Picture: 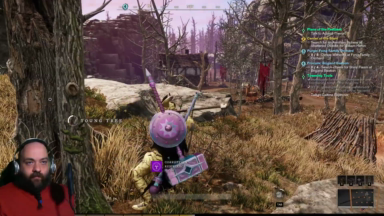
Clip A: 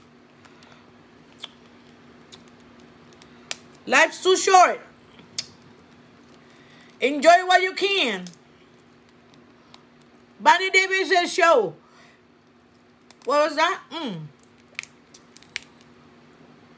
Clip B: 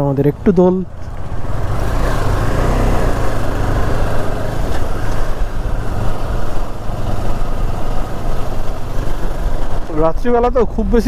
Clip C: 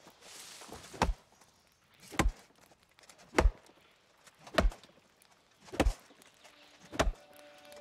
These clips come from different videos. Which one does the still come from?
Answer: C